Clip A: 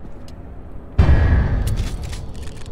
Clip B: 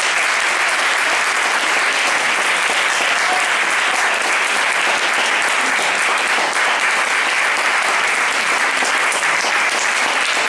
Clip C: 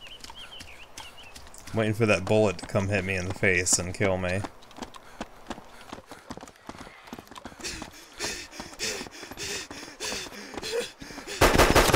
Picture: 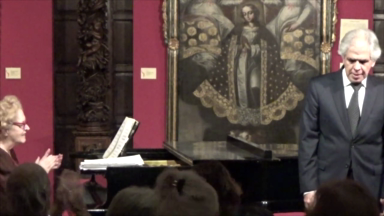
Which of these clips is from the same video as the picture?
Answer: B